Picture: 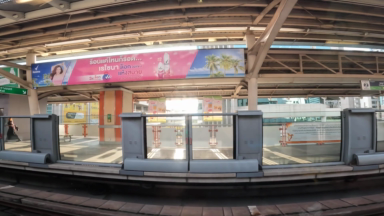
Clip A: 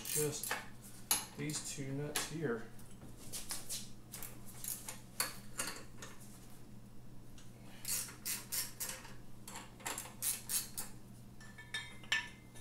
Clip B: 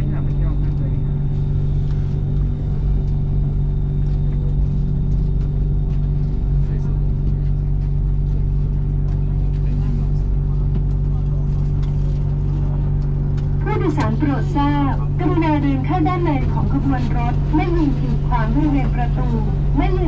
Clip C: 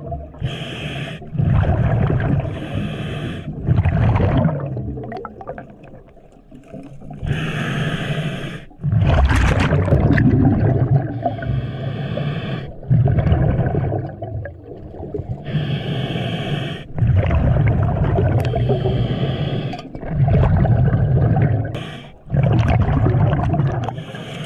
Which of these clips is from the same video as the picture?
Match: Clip B